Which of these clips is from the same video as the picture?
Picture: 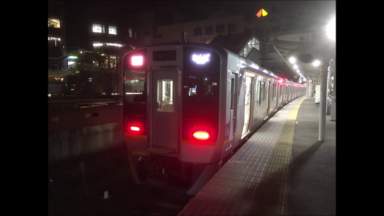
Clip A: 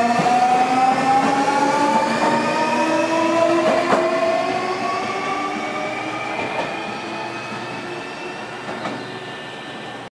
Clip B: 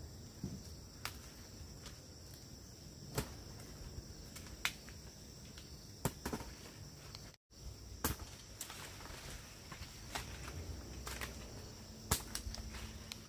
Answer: A